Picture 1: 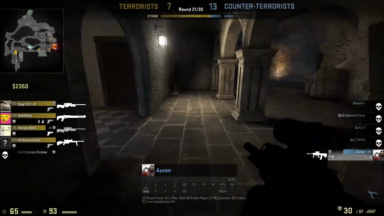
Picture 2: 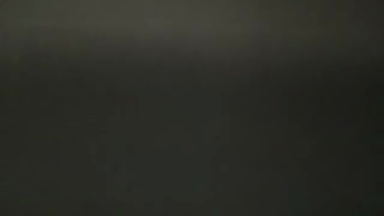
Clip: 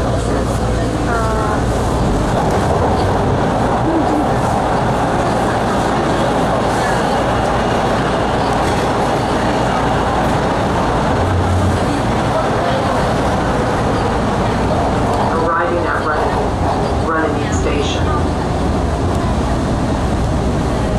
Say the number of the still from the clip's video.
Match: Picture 2